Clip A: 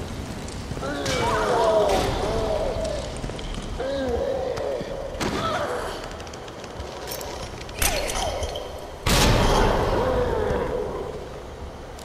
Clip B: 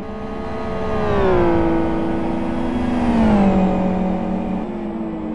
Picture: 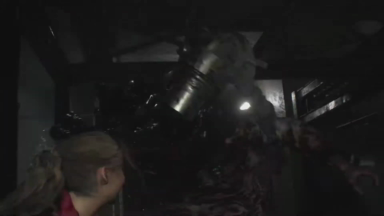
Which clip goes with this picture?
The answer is A